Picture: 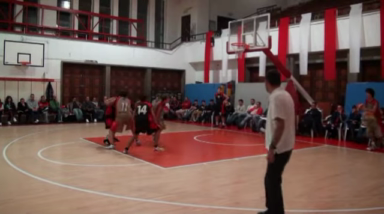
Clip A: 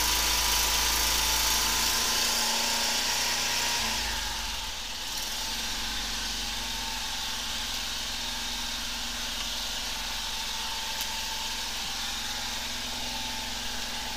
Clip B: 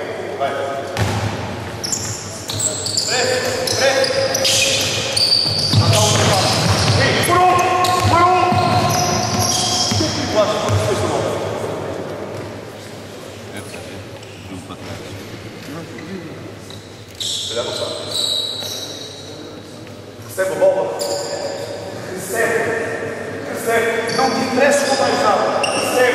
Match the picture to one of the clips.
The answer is B